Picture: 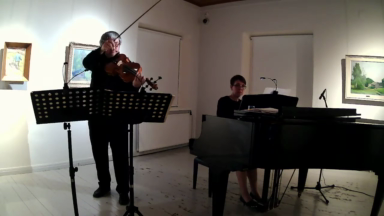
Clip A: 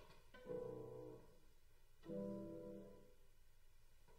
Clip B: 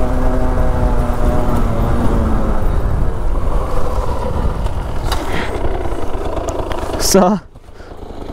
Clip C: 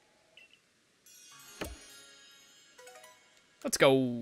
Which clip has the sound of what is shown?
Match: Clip A